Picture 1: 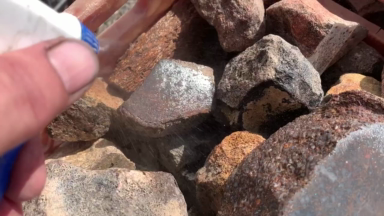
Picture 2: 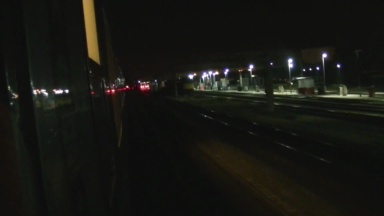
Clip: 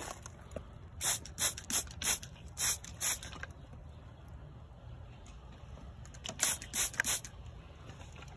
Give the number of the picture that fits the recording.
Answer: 1